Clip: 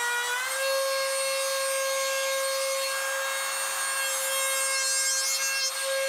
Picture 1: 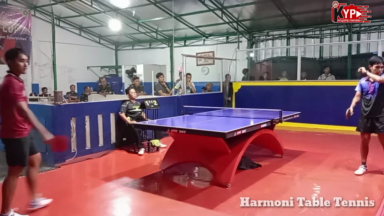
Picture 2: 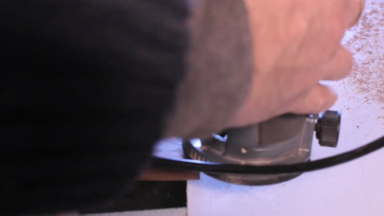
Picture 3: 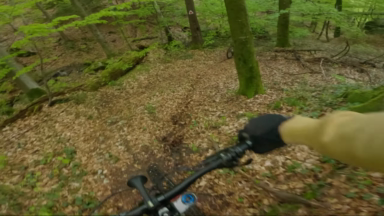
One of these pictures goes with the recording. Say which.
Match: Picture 2